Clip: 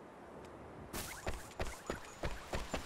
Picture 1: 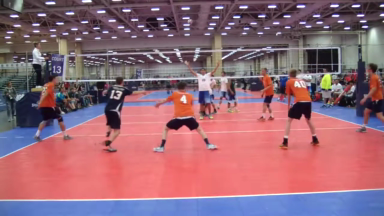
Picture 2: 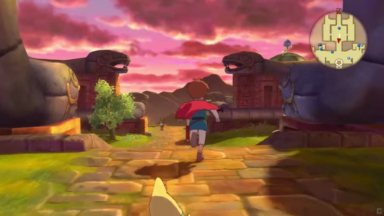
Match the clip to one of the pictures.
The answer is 2